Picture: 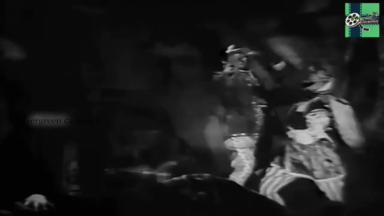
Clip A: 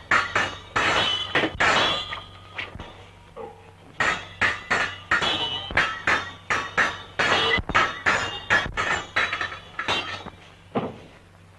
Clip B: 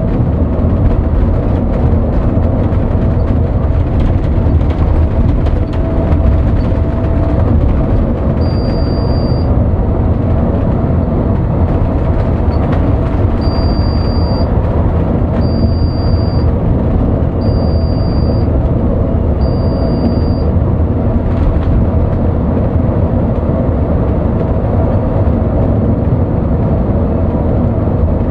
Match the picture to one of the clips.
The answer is A